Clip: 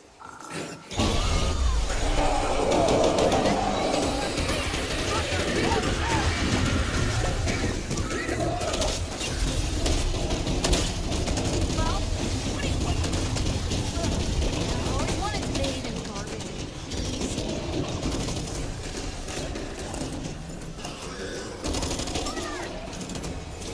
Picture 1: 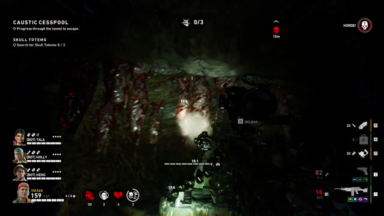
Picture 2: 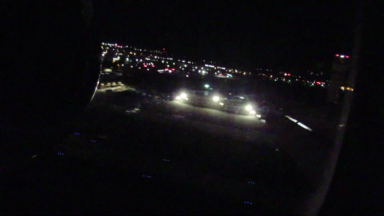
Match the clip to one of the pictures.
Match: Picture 1